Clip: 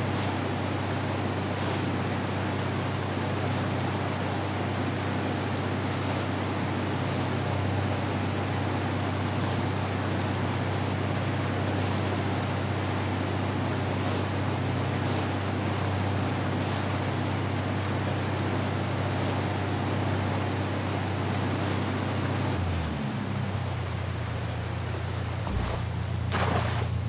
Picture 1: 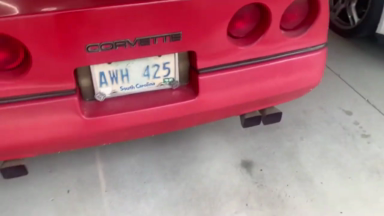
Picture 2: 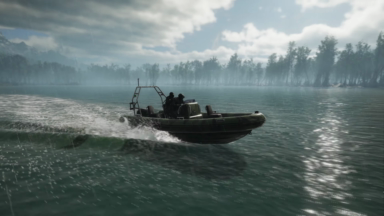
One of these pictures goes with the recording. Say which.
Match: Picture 2